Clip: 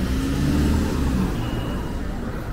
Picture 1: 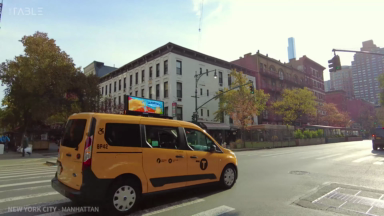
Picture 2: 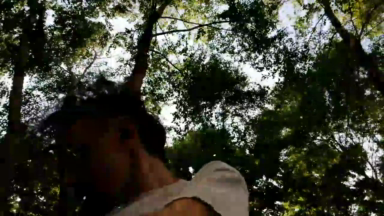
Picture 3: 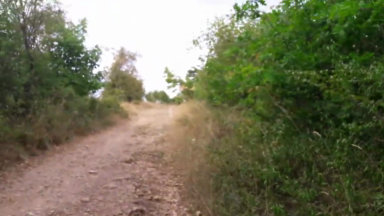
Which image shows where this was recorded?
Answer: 1